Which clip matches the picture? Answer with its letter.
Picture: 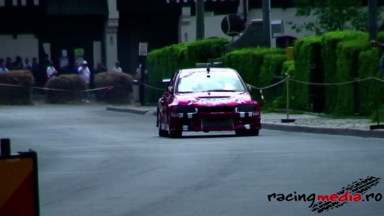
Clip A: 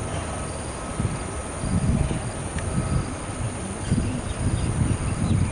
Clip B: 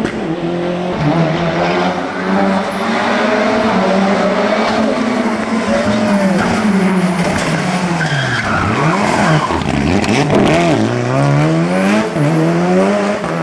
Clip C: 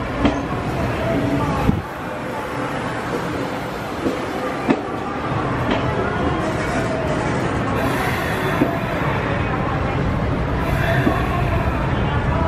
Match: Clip B